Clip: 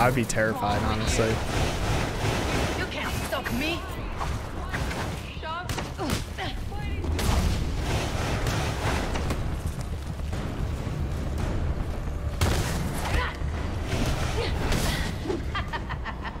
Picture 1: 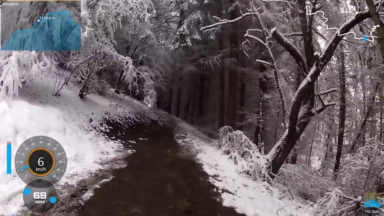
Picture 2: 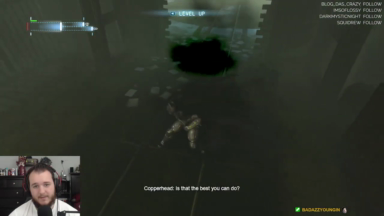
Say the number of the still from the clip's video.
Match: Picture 2